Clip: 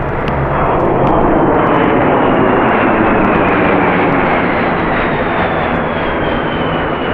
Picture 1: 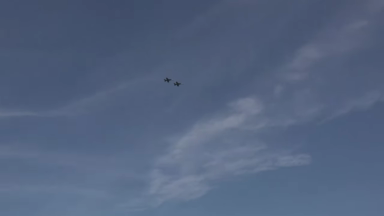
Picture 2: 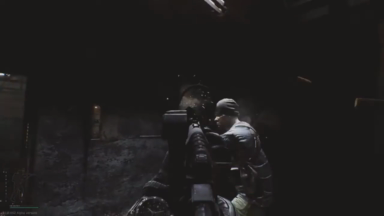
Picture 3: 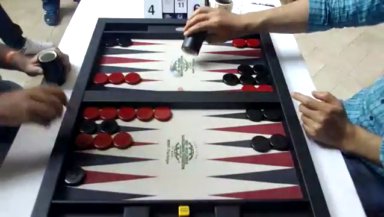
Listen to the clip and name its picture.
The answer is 1